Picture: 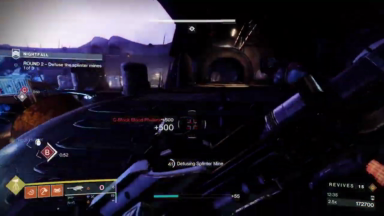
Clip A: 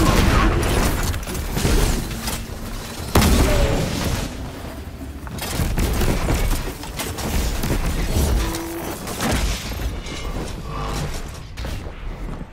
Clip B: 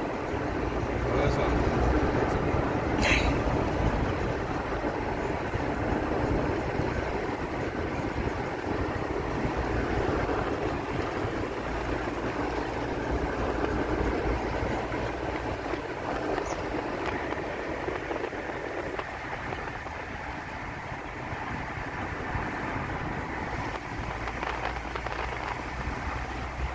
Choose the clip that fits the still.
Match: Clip A